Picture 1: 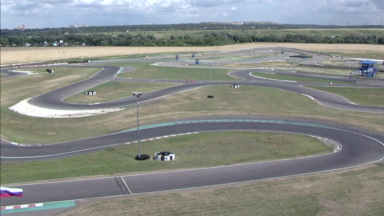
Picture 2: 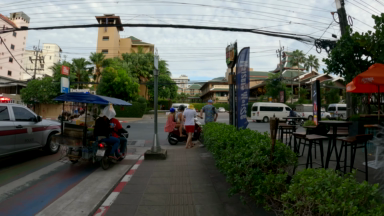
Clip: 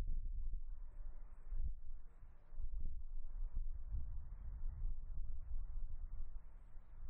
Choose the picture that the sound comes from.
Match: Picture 1